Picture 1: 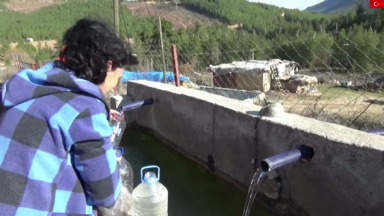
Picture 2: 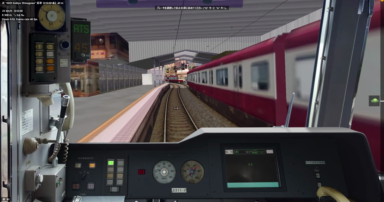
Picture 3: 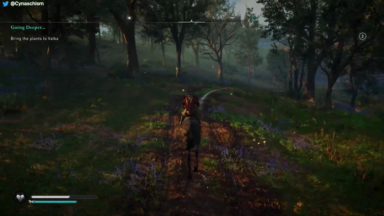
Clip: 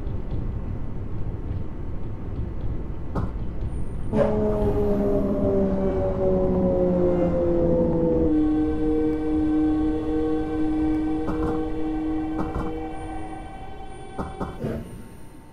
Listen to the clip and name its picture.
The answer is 2